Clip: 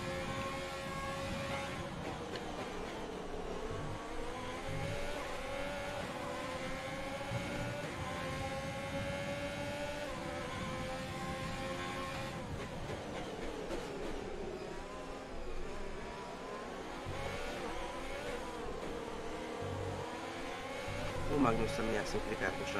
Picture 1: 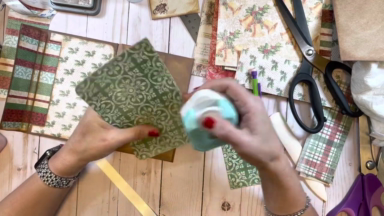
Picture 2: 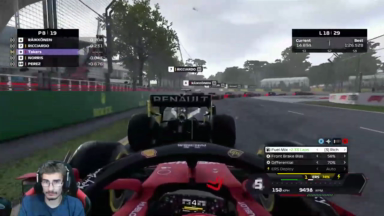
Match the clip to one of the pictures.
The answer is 2